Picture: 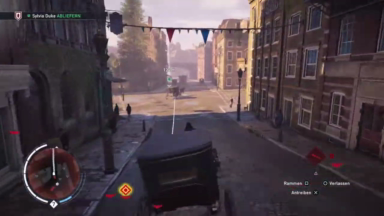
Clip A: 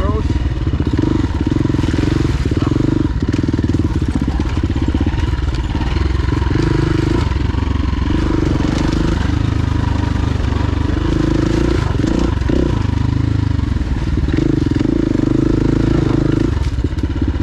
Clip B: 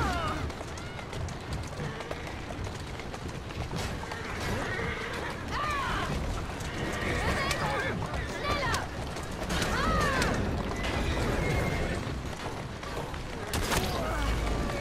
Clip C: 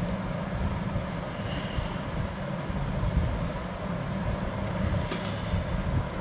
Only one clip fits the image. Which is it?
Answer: B